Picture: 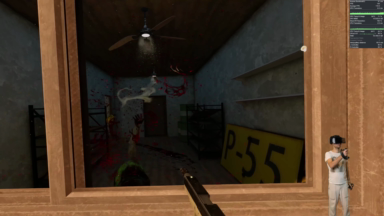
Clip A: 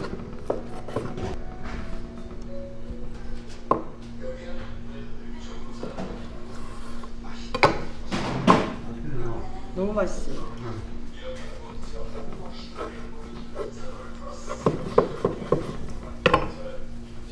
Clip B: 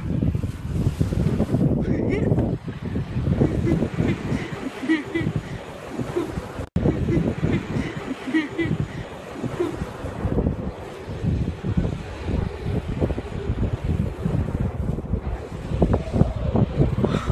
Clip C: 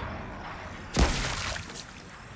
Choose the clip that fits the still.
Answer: C